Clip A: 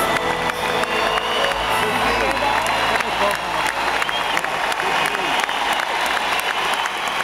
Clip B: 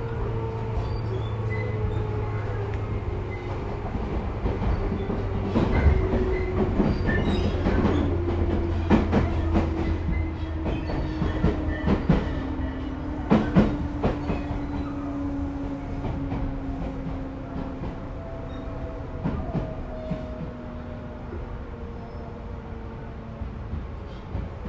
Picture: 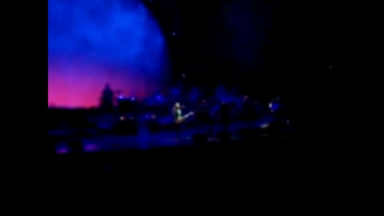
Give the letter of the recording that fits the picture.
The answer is A